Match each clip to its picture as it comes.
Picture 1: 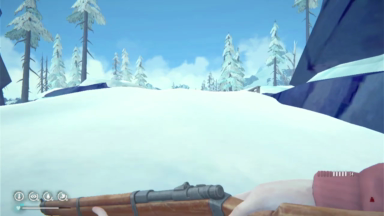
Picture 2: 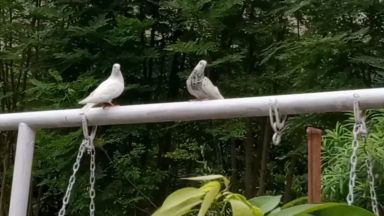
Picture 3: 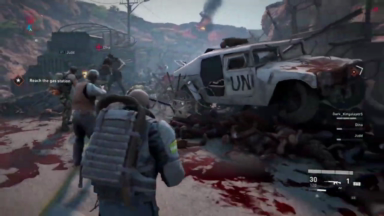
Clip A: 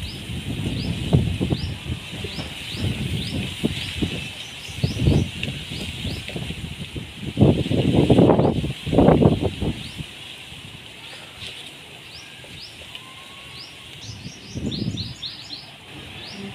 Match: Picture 2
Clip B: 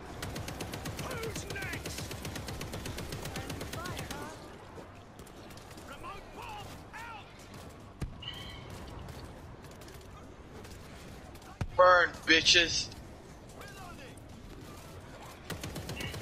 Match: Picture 3